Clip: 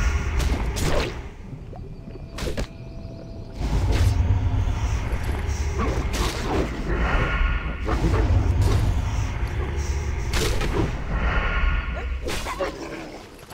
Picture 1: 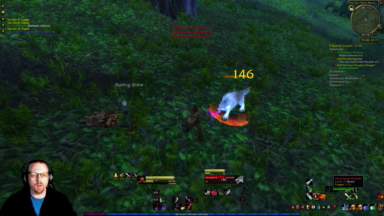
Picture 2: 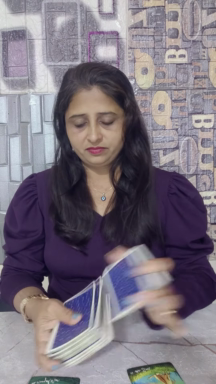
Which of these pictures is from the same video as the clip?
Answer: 1